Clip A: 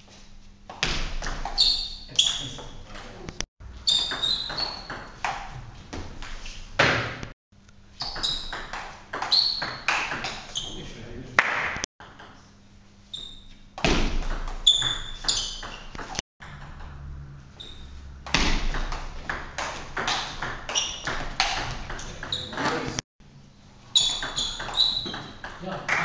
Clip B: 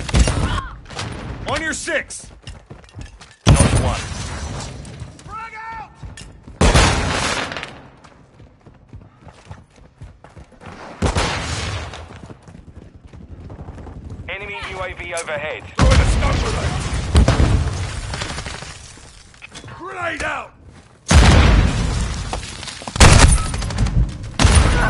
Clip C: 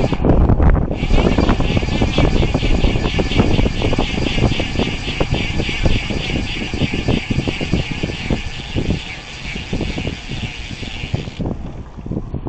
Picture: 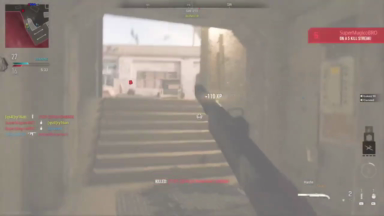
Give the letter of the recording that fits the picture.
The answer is B